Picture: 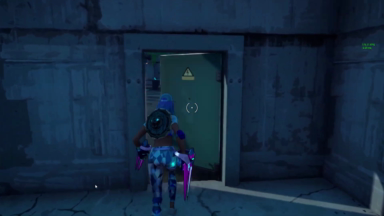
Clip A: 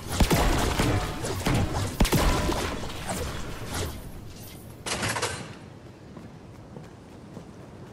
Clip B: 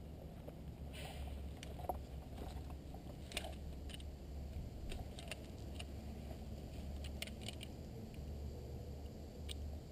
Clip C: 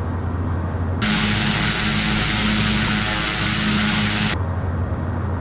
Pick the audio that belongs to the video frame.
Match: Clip A